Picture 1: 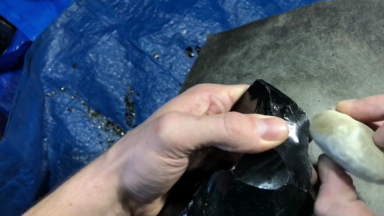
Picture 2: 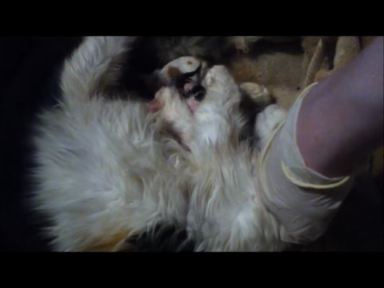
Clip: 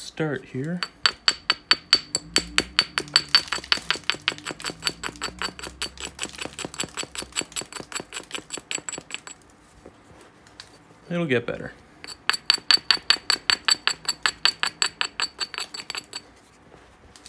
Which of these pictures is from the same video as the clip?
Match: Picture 1